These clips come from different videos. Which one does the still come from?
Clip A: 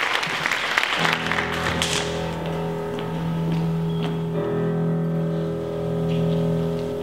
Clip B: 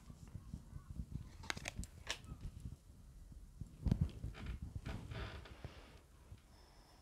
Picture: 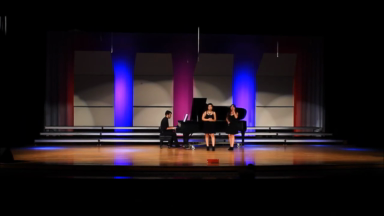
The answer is A